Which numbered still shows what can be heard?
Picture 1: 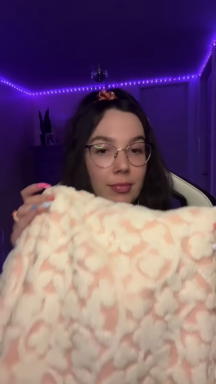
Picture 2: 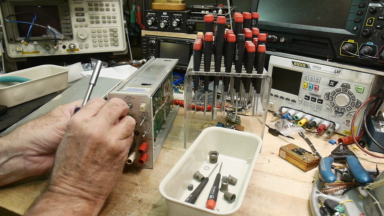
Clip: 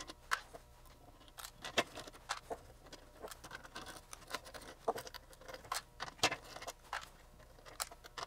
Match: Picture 2